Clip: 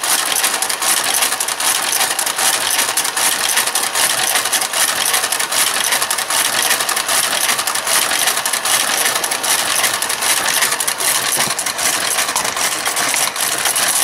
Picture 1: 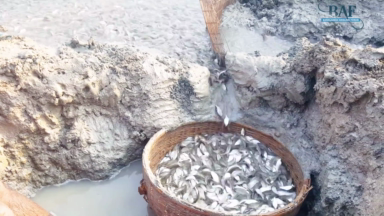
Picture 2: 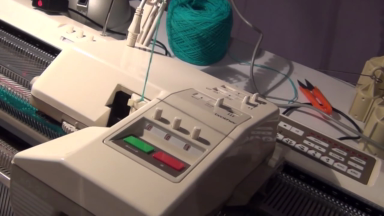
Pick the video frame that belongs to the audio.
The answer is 2